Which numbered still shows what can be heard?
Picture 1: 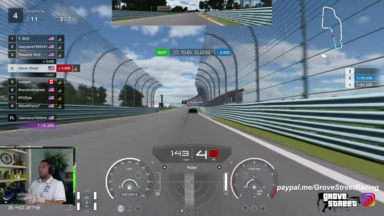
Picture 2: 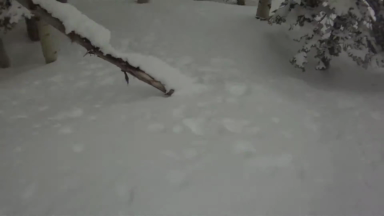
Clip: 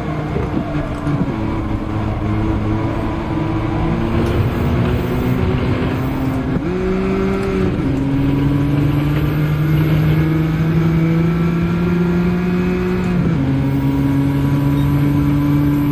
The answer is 1